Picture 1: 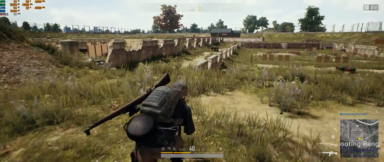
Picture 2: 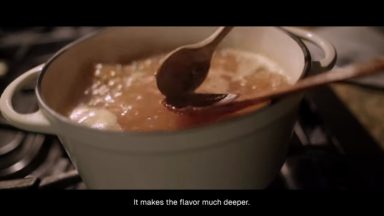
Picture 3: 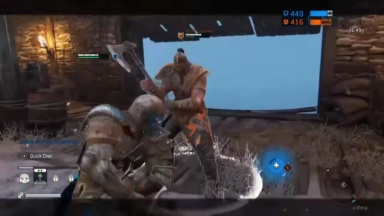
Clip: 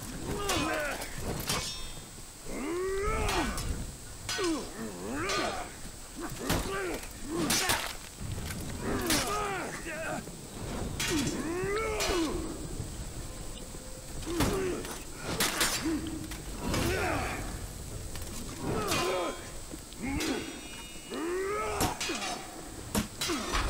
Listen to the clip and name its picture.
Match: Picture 3